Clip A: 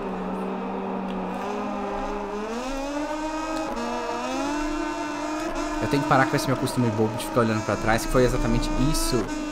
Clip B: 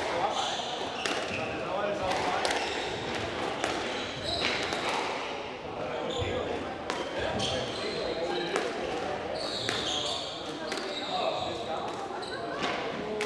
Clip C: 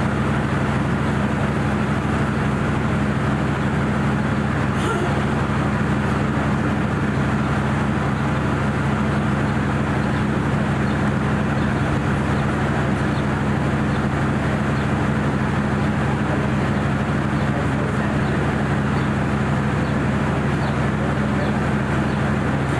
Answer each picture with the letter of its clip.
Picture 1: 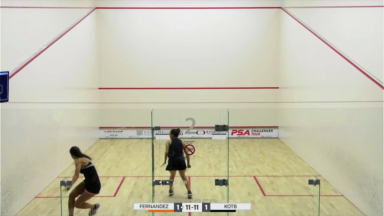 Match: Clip B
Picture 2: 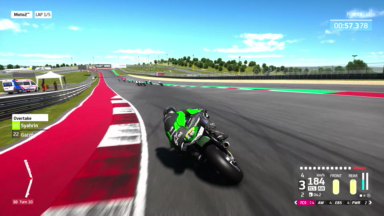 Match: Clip A